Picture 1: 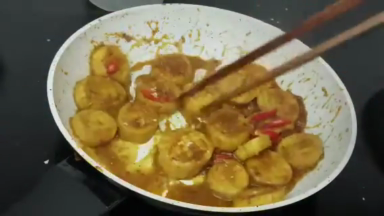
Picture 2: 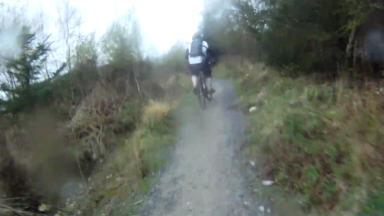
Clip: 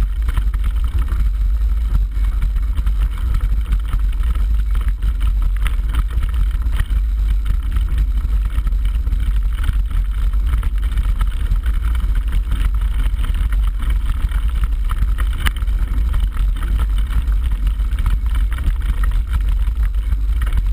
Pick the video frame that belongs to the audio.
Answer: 2